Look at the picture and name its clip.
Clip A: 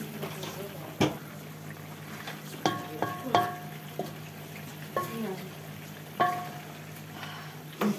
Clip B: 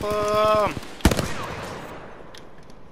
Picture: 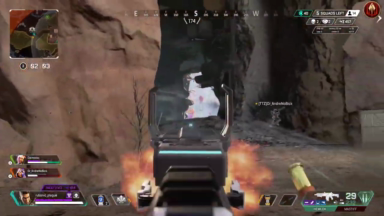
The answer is B